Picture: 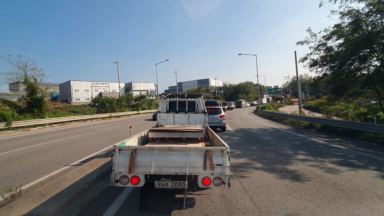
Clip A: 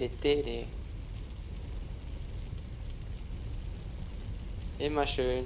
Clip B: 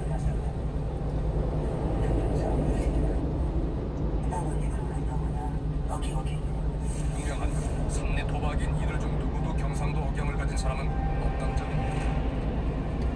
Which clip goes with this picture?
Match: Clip B